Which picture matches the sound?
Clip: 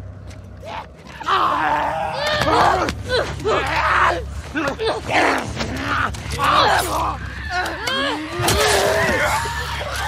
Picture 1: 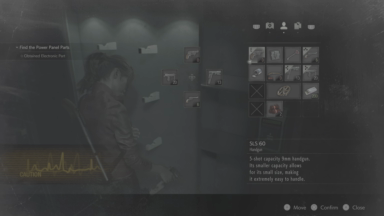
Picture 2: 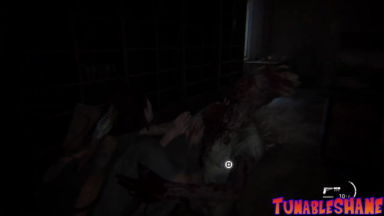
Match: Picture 2